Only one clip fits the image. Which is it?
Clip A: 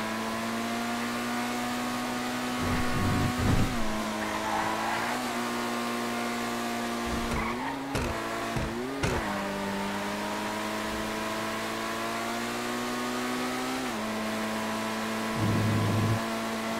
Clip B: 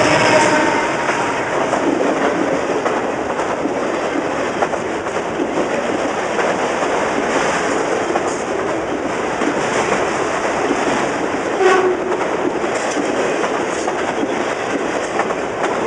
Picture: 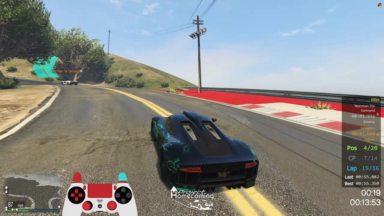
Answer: A